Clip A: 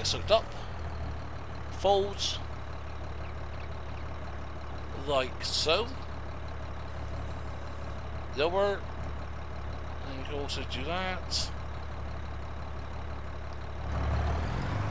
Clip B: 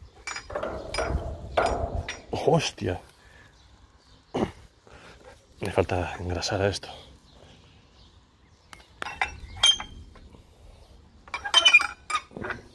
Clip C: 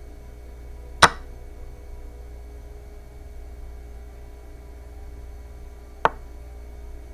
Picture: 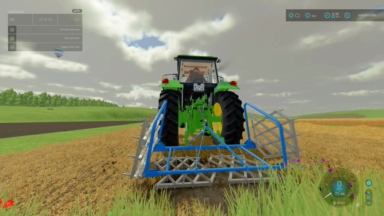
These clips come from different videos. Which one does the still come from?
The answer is A